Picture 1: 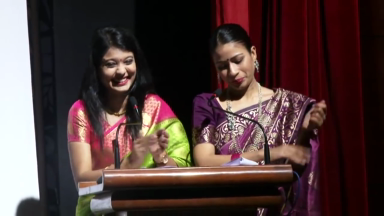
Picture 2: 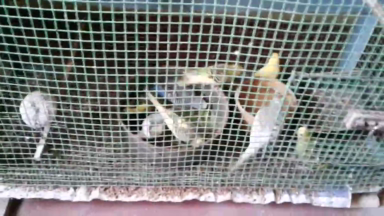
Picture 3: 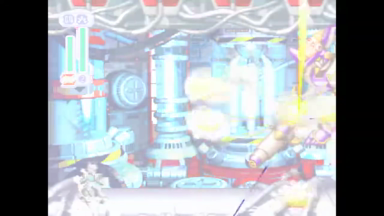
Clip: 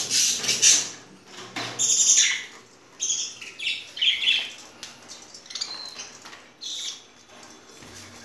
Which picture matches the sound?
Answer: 2